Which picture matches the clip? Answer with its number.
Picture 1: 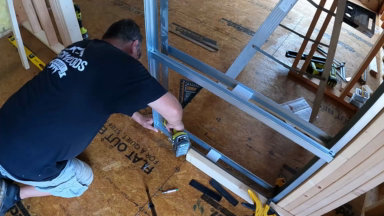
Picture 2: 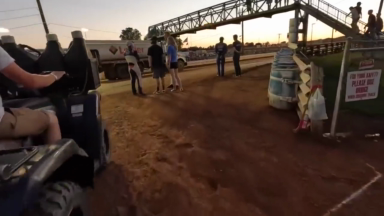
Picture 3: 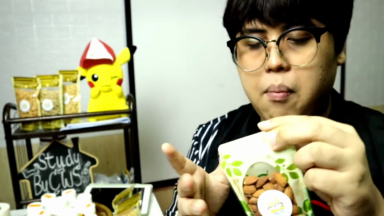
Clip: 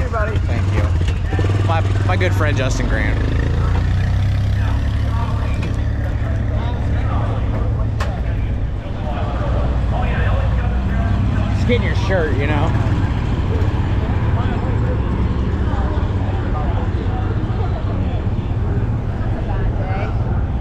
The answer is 2